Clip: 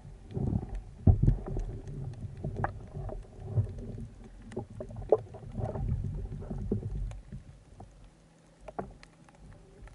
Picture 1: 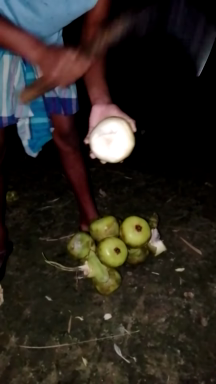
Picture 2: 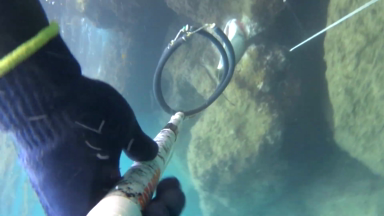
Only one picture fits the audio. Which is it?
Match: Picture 2